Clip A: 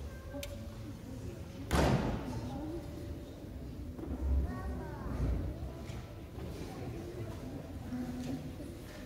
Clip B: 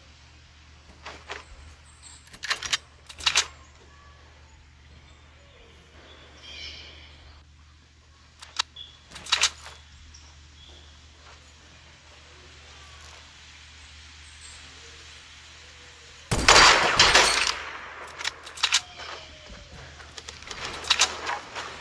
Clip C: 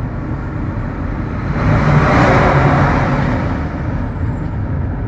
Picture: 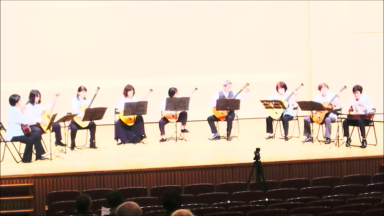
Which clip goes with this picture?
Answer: A